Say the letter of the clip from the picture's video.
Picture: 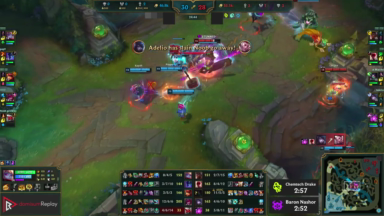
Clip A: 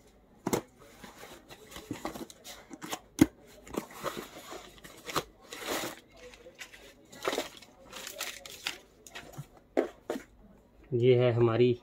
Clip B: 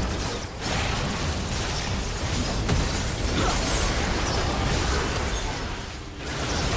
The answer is B